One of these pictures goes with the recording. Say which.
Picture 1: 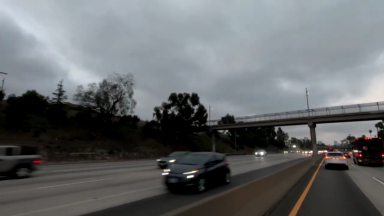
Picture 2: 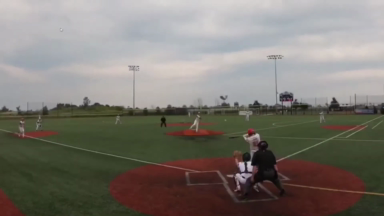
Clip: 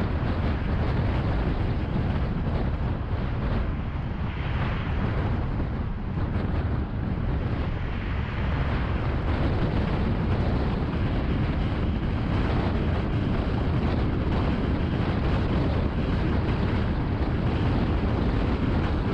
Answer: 1